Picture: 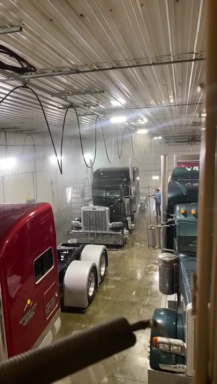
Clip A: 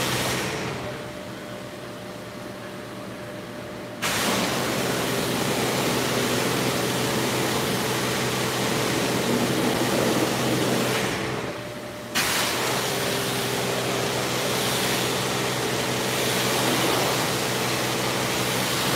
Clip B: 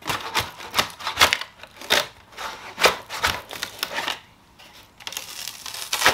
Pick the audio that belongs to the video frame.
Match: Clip A